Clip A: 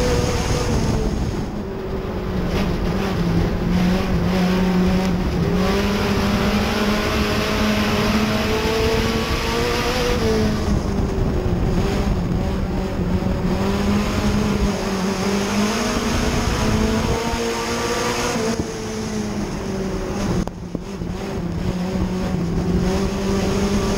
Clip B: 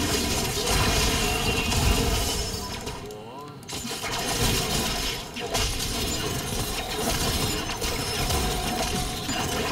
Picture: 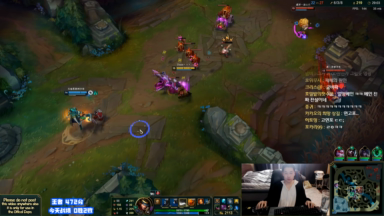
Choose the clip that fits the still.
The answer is B